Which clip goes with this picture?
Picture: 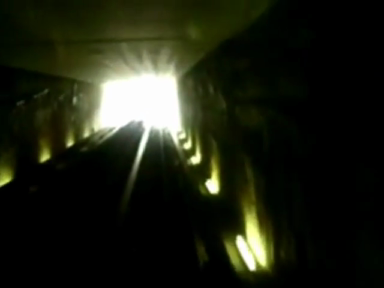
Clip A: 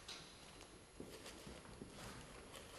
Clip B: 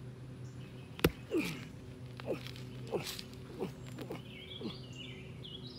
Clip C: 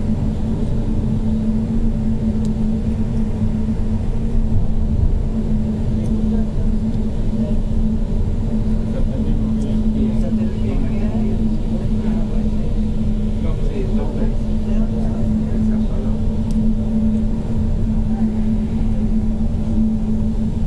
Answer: C